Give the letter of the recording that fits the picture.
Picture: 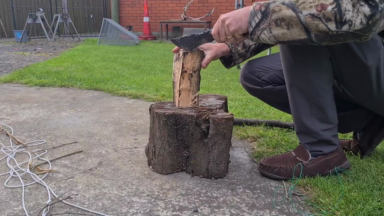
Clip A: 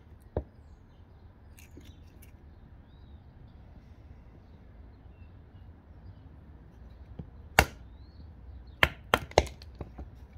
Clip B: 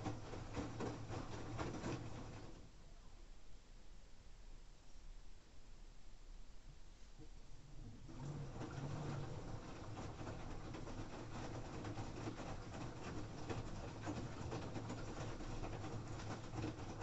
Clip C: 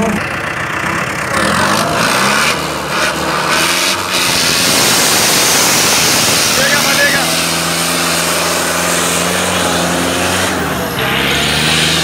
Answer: A